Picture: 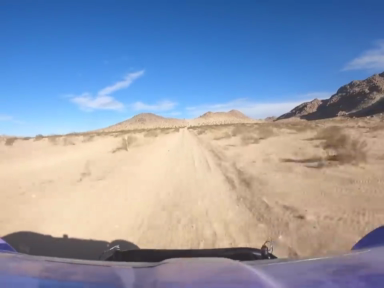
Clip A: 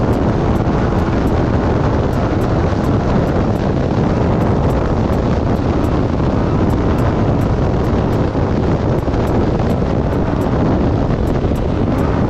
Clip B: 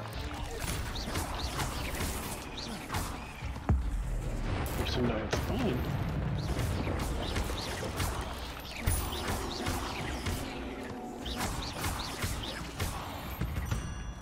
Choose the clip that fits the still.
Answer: A